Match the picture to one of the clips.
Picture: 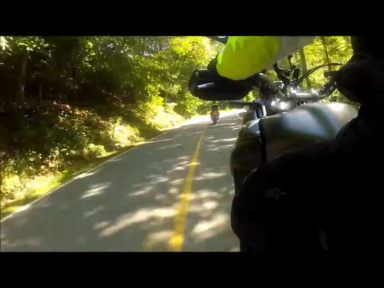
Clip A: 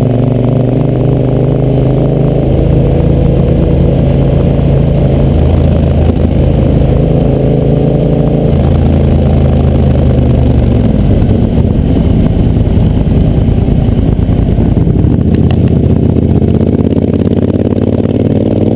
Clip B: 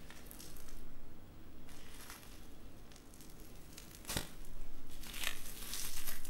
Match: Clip A